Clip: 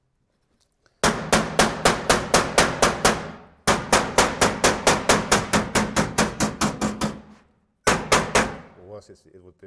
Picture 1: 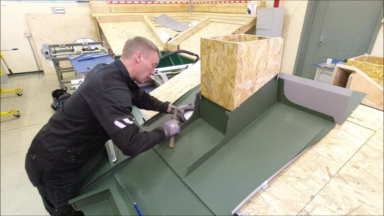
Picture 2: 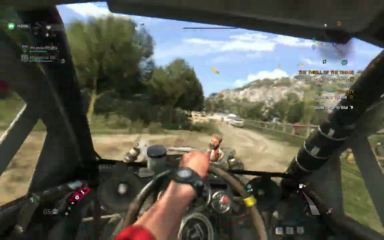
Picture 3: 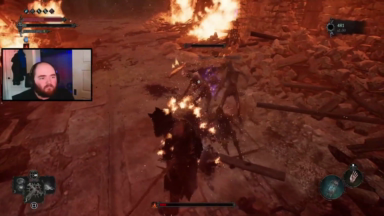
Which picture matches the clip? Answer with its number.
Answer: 1